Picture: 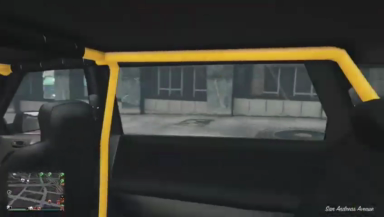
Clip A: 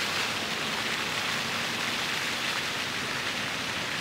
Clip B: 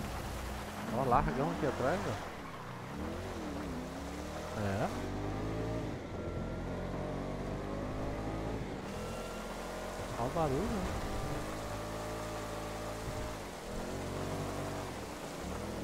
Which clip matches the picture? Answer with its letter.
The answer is B